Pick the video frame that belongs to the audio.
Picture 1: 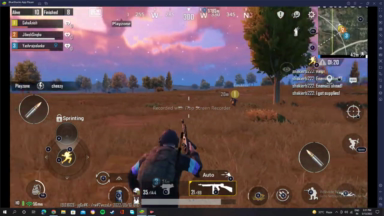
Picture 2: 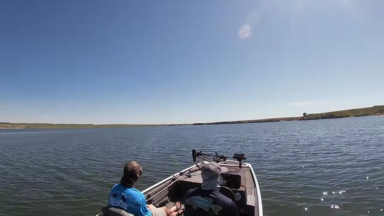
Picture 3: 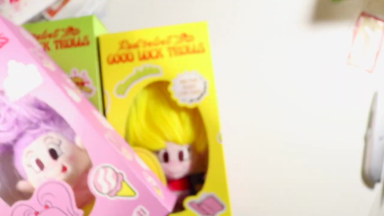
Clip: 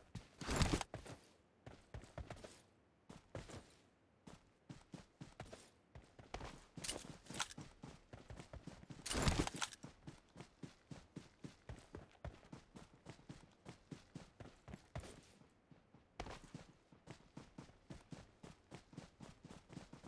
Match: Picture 1